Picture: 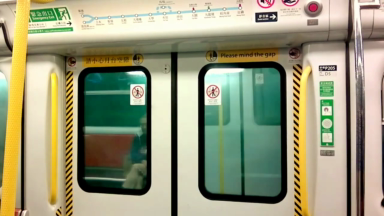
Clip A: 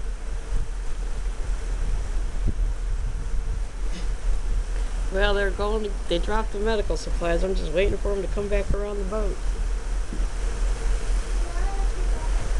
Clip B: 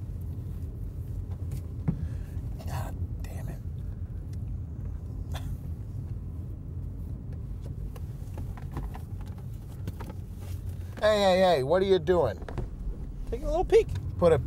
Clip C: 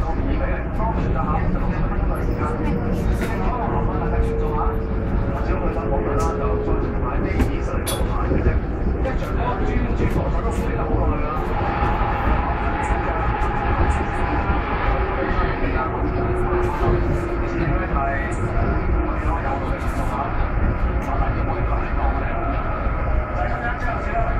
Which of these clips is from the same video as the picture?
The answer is C